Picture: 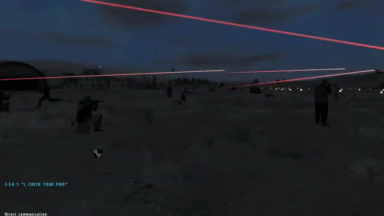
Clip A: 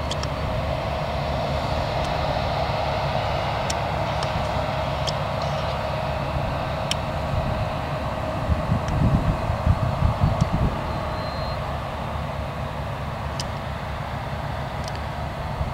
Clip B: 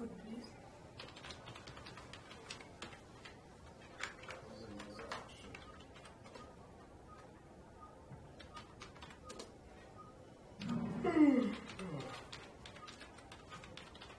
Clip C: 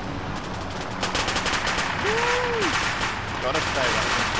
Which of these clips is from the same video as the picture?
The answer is C